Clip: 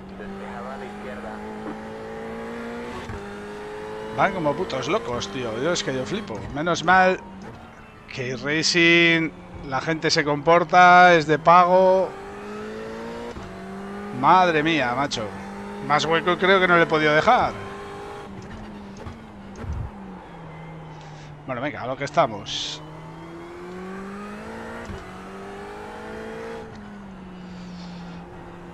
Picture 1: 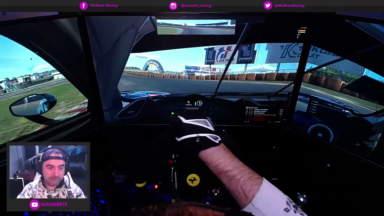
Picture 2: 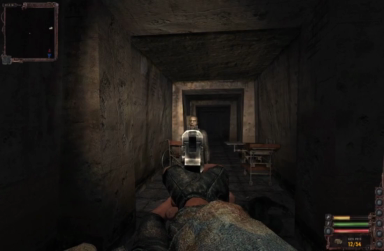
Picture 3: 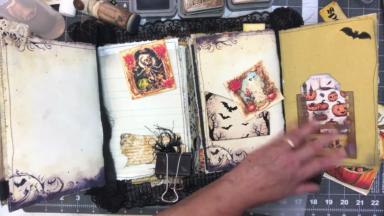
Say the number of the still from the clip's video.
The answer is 1